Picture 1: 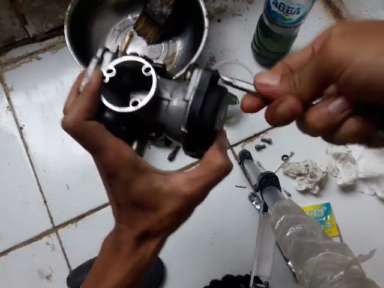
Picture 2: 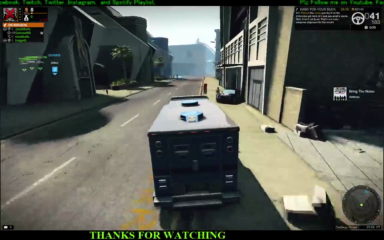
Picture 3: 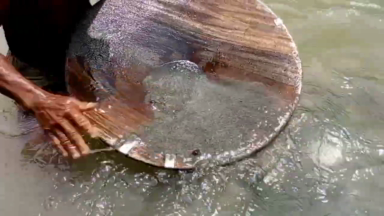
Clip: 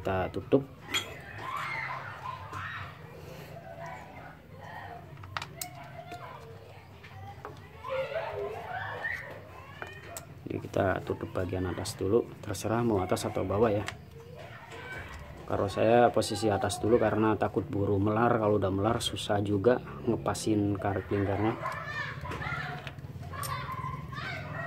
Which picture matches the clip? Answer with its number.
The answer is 1